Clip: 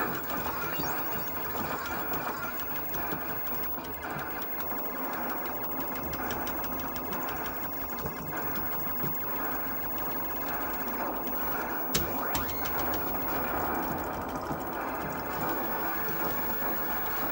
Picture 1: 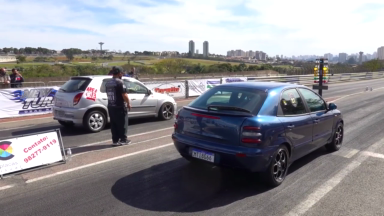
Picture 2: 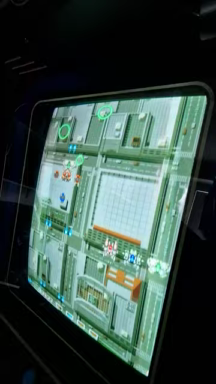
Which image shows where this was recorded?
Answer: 2